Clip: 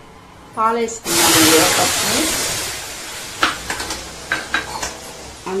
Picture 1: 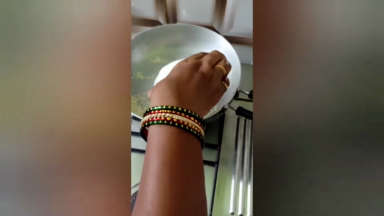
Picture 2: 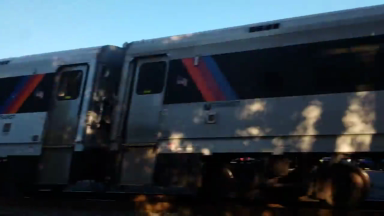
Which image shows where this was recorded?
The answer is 1